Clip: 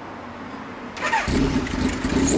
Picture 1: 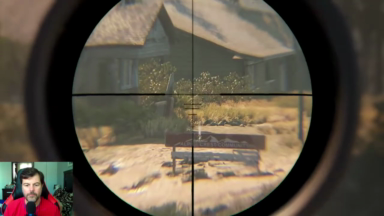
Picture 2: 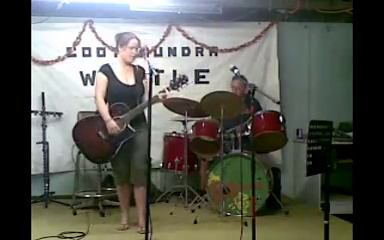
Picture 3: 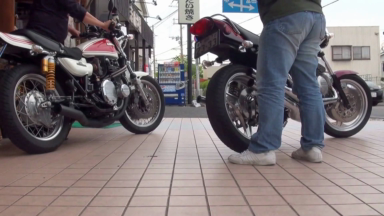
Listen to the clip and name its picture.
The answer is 3